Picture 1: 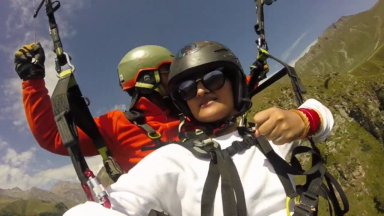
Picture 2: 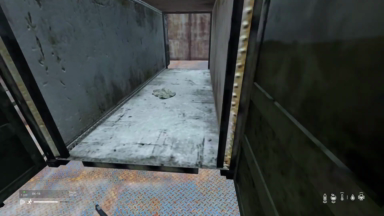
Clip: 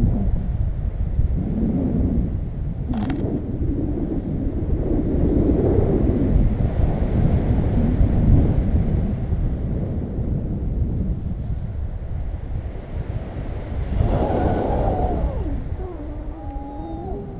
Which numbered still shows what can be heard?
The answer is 1